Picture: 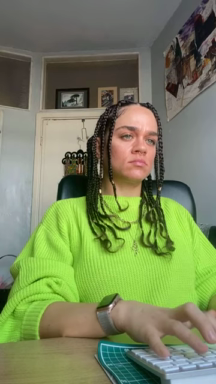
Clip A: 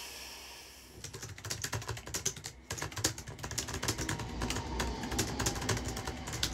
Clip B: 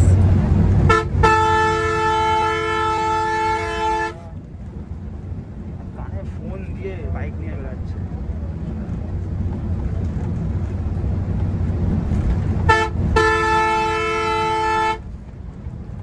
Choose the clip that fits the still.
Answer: A